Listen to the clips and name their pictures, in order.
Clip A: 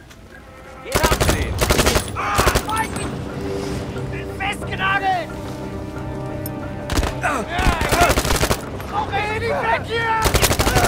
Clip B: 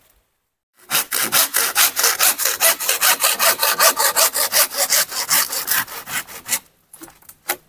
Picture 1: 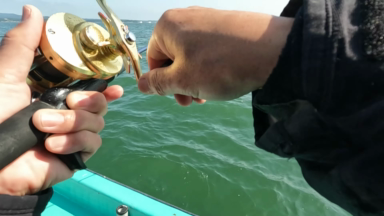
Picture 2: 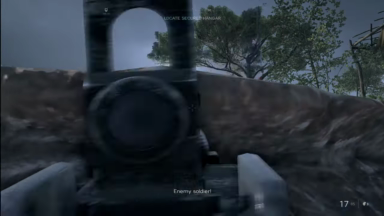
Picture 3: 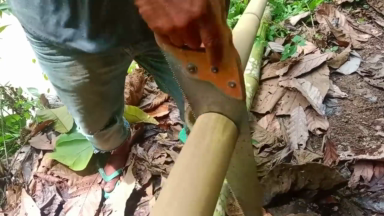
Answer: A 2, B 3